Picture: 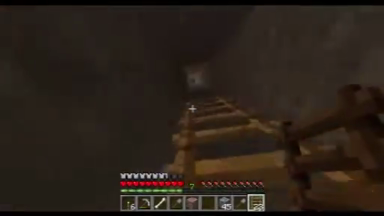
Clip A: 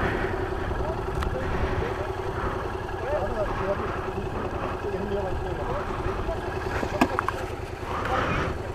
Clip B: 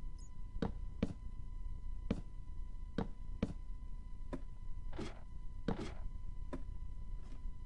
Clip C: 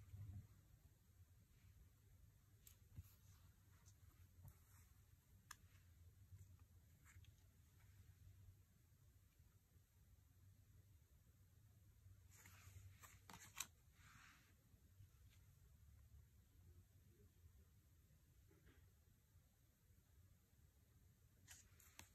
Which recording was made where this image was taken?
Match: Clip B